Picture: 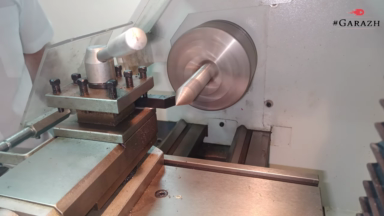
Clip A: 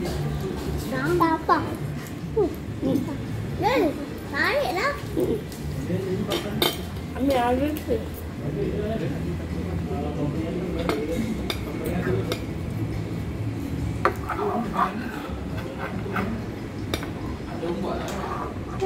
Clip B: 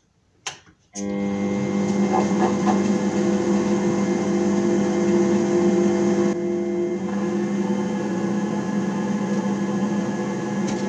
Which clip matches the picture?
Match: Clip B